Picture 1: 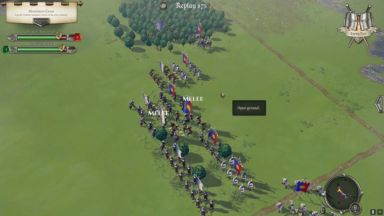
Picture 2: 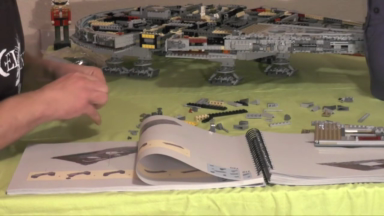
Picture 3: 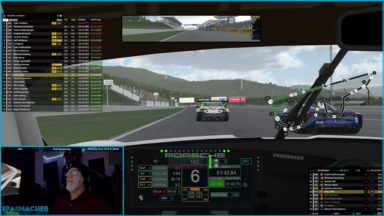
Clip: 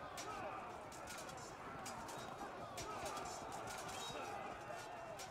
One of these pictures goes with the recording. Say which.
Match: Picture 1